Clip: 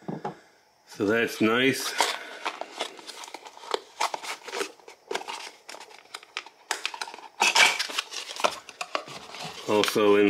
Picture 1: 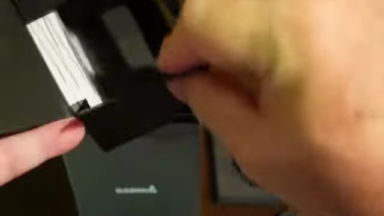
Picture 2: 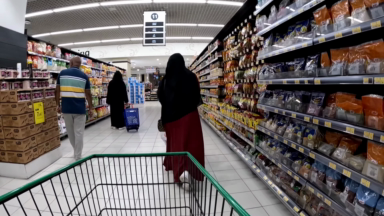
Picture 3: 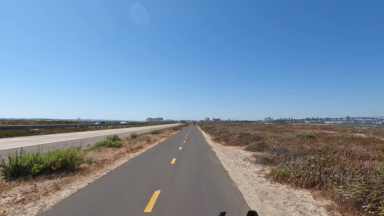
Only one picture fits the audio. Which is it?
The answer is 1